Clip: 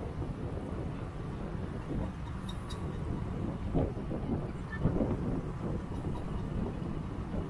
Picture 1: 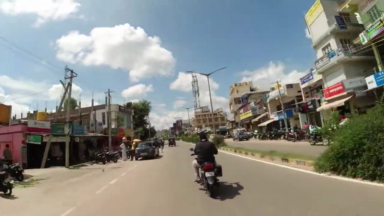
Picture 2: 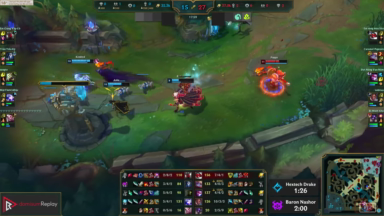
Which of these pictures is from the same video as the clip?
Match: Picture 1